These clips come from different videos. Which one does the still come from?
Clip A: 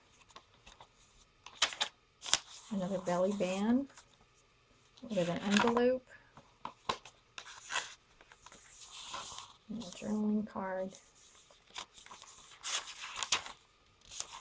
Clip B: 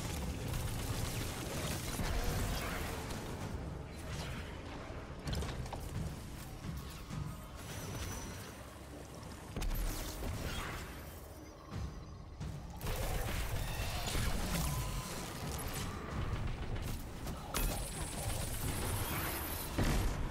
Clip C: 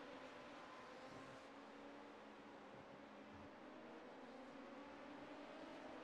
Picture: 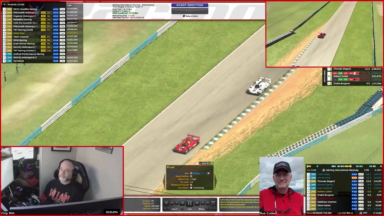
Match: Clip C